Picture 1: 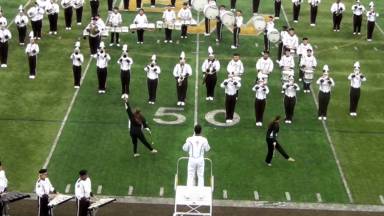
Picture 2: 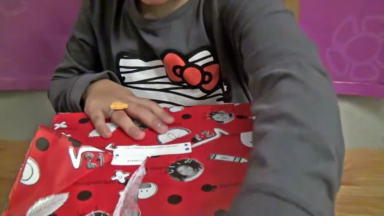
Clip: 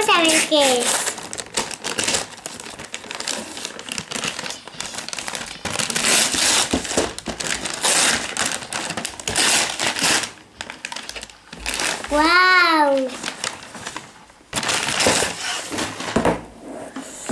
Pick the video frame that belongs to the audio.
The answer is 2